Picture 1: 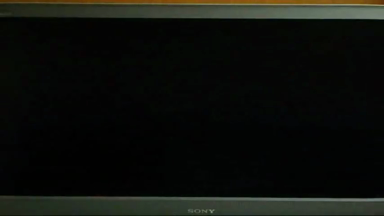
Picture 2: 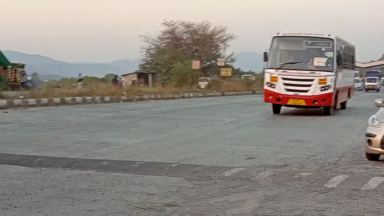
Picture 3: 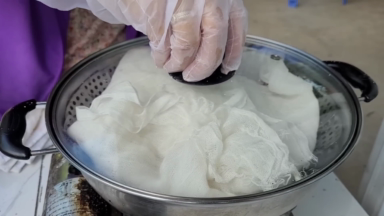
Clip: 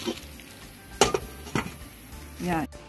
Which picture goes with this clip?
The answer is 3